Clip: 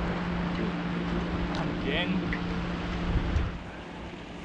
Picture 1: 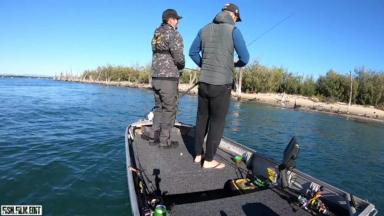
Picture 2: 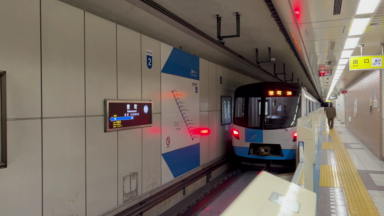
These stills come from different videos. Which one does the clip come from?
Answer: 1